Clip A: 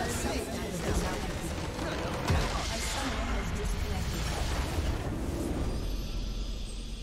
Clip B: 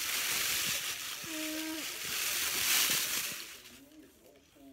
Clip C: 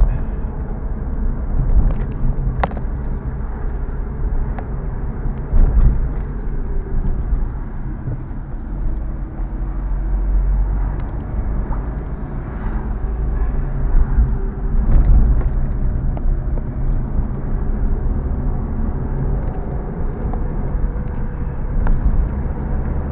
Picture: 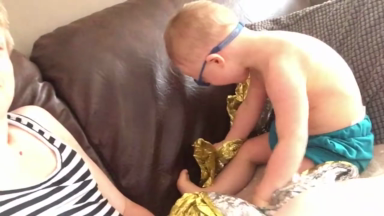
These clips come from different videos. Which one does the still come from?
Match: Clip B